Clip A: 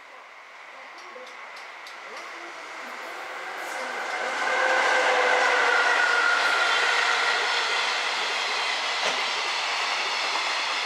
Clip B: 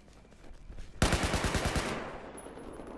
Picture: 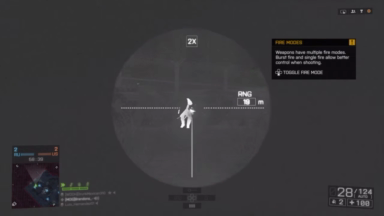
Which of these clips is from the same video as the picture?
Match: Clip B